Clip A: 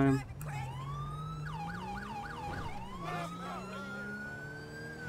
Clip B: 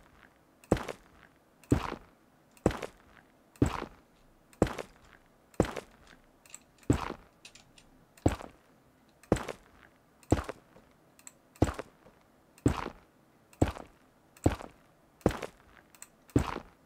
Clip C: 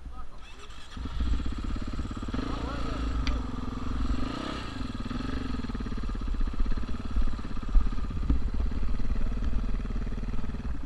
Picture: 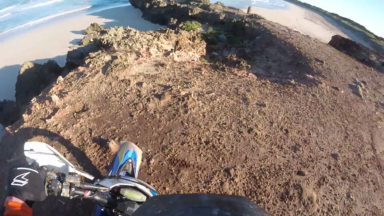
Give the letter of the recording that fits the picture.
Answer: C